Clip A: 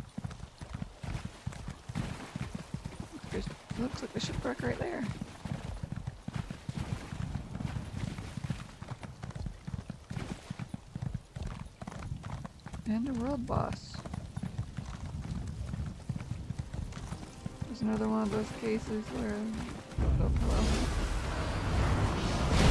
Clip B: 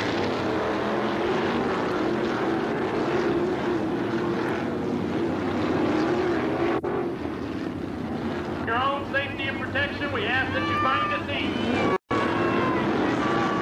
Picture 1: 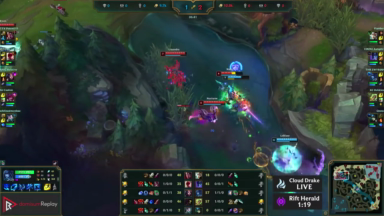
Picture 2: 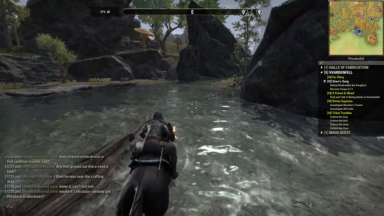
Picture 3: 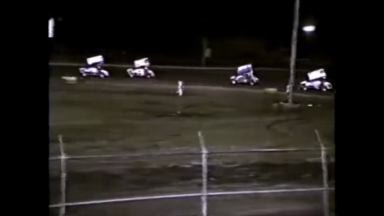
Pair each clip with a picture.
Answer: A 2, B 3